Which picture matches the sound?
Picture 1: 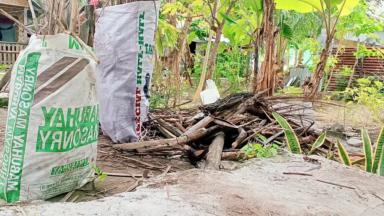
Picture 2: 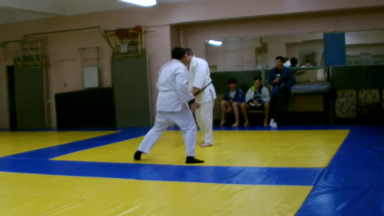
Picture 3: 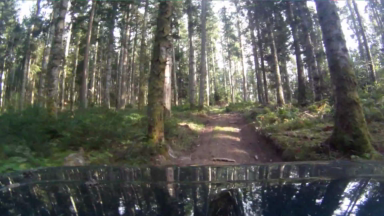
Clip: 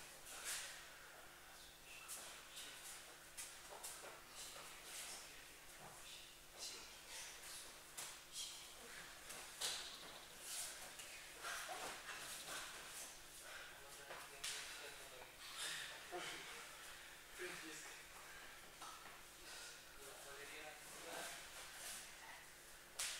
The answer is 2